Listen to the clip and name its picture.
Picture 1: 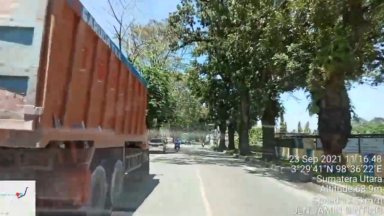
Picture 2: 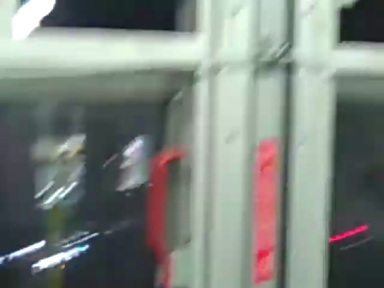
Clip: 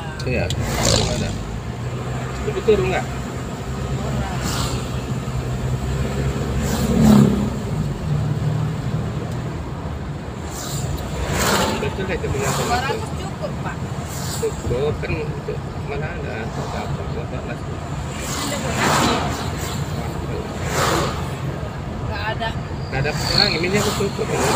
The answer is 1